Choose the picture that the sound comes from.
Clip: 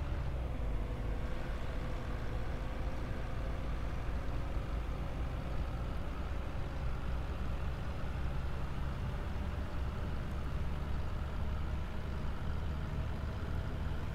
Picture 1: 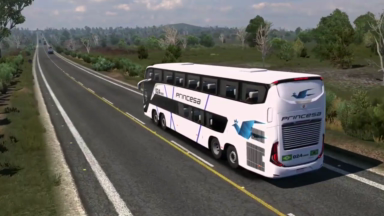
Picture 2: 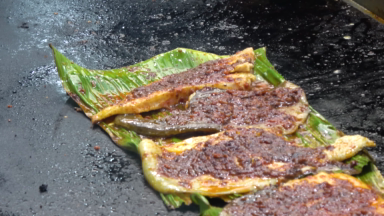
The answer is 1